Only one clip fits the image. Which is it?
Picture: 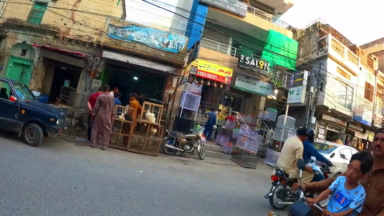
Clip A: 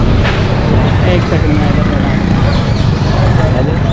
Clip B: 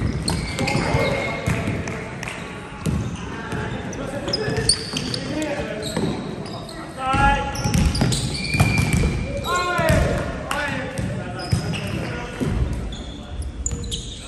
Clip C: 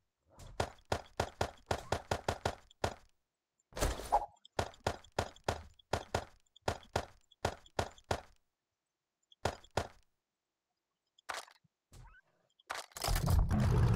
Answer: A